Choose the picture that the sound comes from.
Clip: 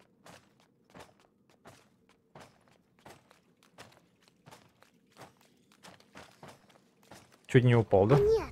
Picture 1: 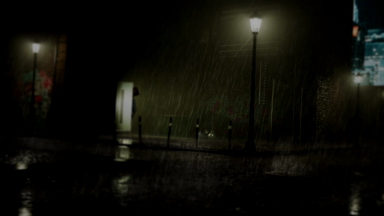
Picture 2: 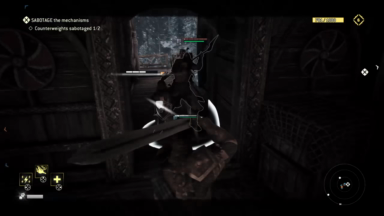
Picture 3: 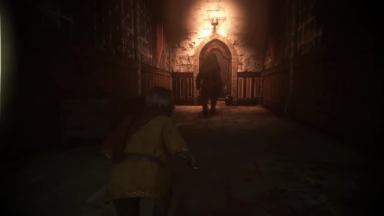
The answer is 3